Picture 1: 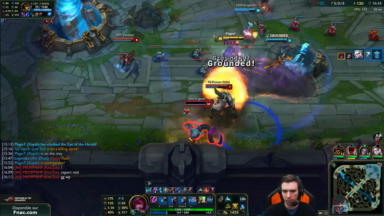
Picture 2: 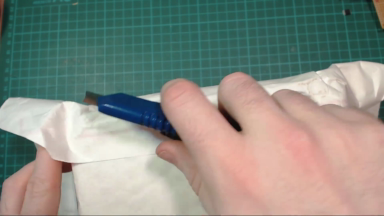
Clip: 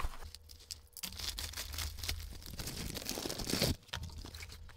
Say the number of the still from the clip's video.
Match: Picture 2